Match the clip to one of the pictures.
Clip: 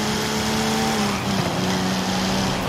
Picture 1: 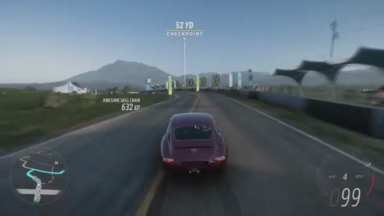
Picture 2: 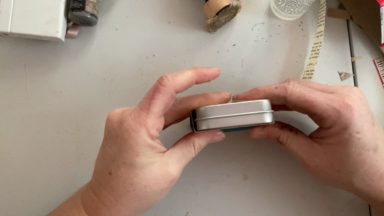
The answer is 1